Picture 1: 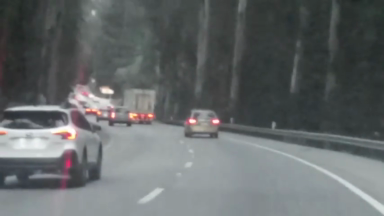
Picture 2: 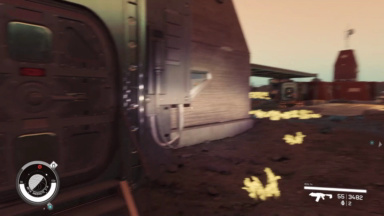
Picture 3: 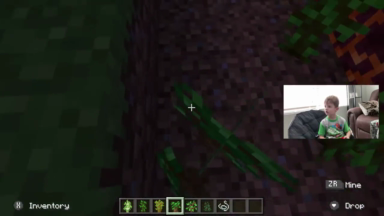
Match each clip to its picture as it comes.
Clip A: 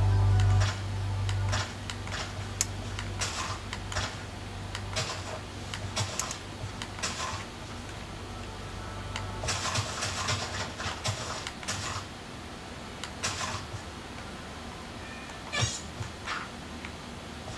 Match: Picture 3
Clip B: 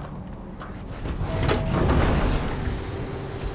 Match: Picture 2